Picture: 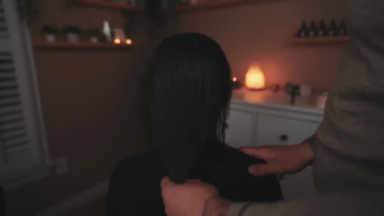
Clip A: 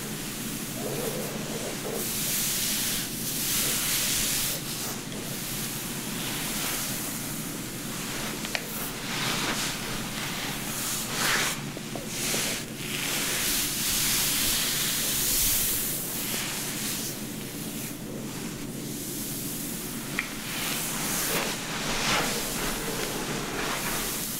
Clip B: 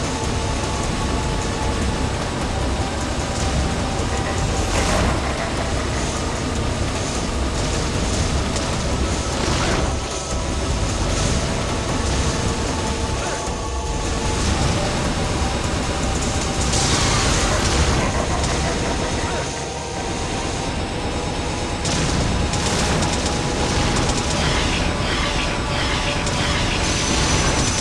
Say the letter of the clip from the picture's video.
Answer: A